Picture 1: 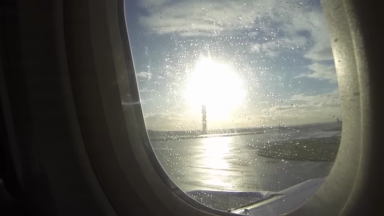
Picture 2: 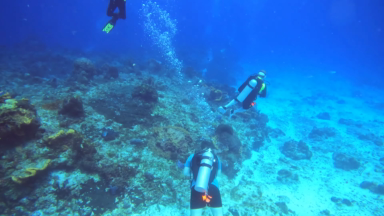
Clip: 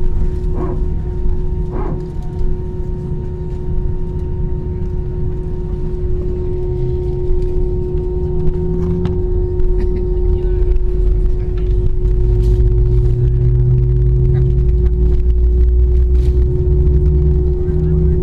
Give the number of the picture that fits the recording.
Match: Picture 1